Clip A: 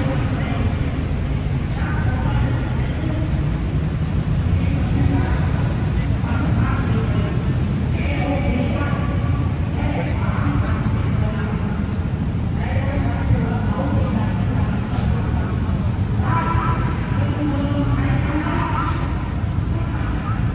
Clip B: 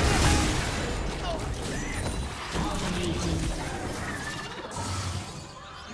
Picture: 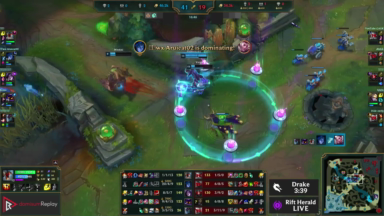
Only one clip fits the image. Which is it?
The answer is B